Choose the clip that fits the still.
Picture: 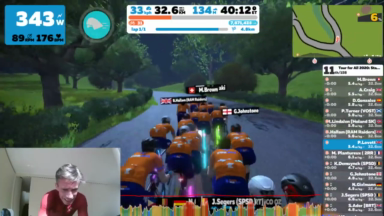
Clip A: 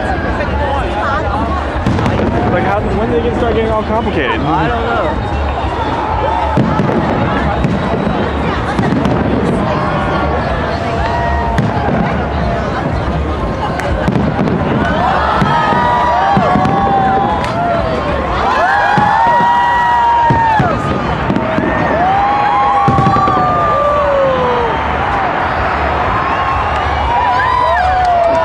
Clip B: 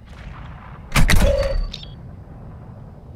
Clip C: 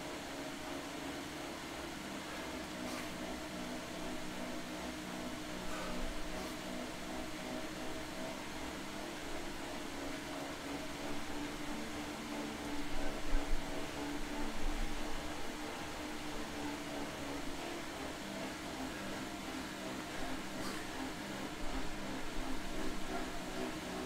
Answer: C